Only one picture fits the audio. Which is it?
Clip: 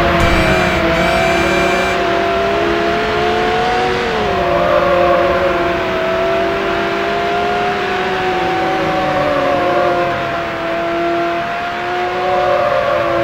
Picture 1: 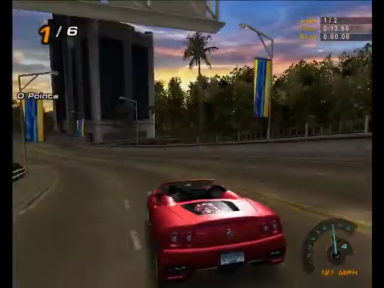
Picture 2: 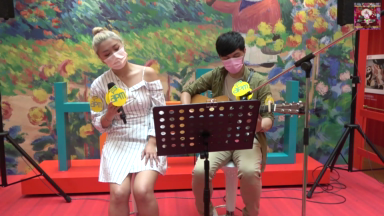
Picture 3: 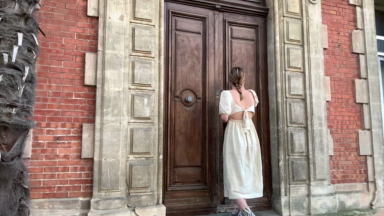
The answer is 1